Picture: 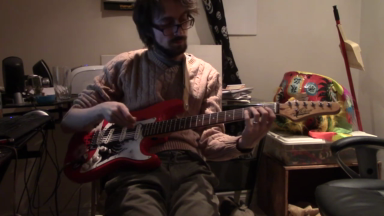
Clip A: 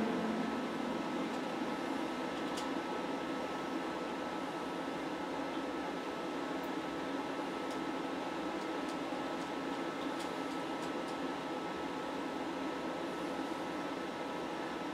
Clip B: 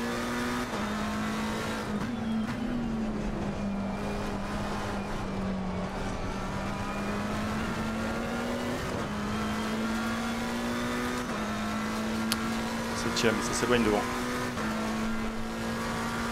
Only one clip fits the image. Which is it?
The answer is A